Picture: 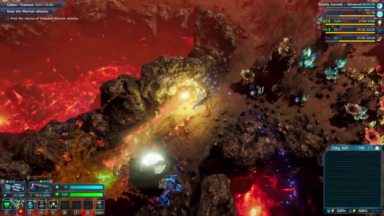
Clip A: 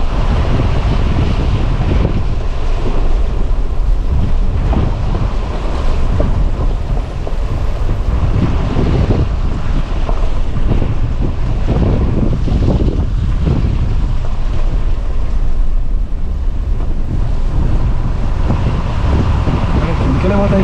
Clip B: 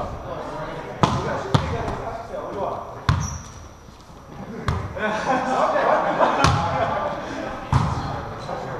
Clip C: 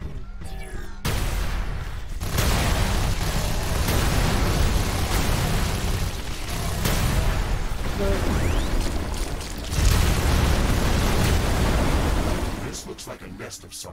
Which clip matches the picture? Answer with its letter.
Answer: C